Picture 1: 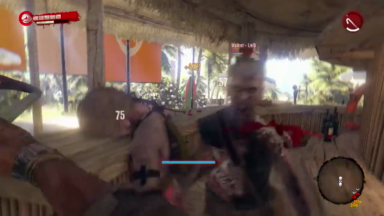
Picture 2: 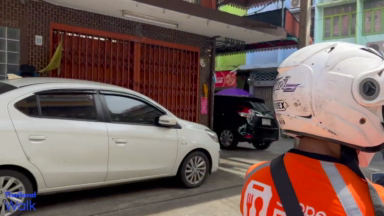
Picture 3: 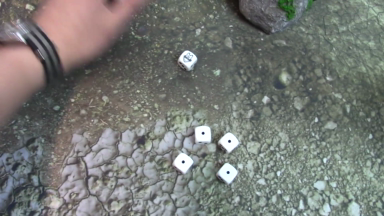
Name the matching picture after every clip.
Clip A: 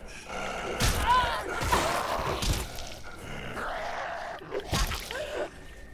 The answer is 1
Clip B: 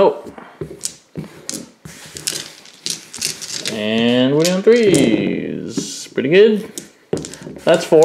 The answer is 3